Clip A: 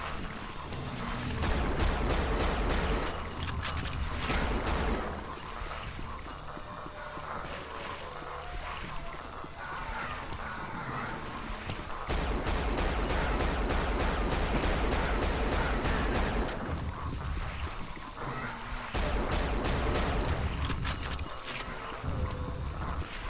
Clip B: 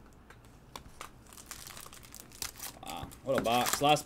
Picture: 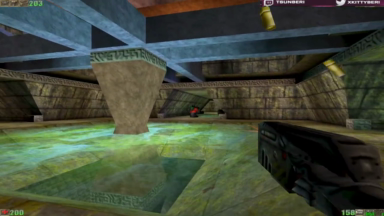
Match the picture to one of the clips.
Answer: A